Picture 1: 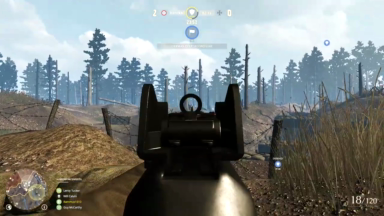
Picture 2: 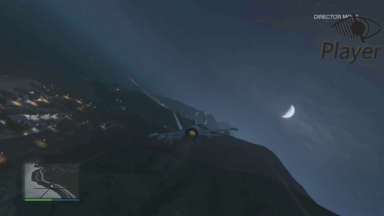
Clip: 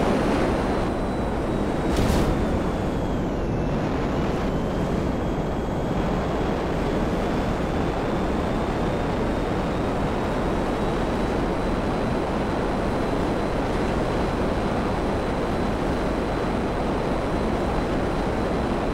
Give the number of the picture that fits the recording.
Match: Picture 2